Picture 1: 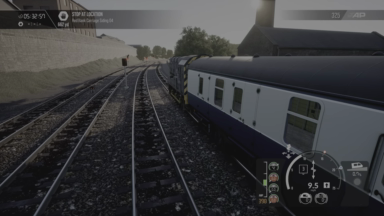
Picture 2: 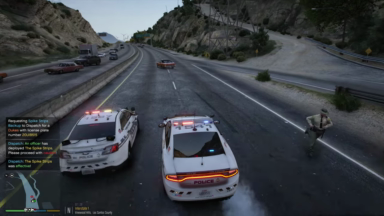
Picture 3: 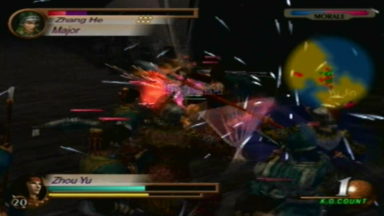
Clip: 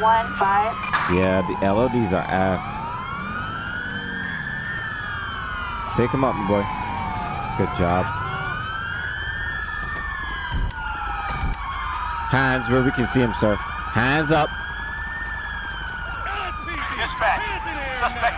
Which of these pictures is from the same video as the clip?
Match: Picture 2